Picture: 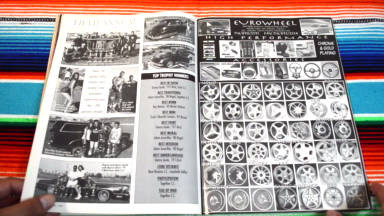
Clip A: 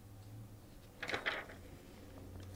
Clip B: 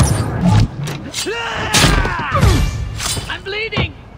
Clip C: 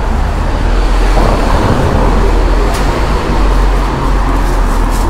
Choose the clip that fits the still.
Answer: A